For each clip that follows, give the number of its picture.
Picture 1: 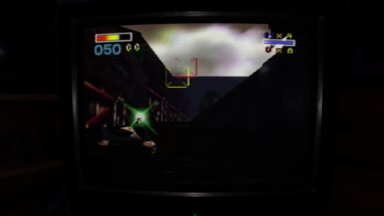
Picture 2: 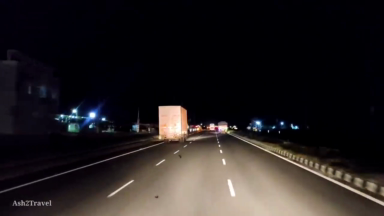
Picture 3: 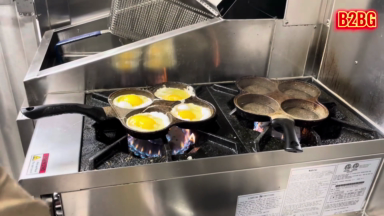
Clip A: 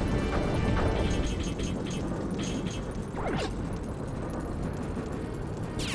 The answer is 1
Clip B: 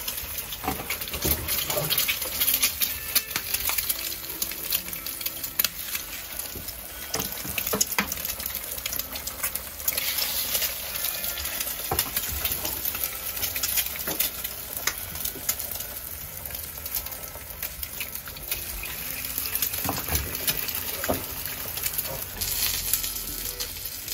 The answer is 3